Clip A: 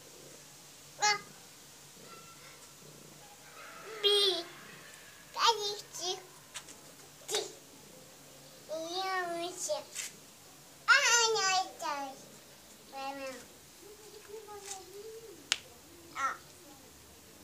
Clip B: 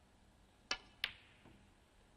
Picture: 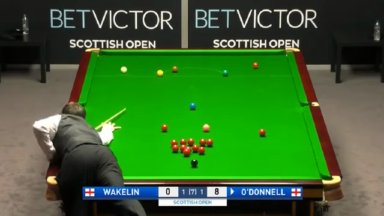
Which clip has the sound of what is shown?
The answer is B